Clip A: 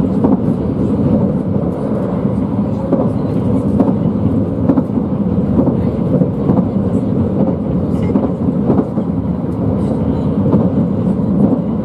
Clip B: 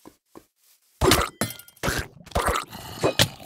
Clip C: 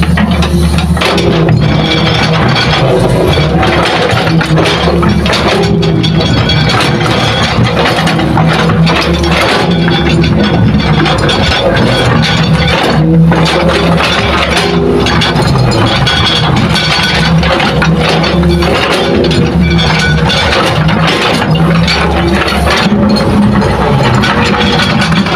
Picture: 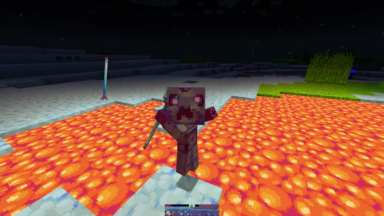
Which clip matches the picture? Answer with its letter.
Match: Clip B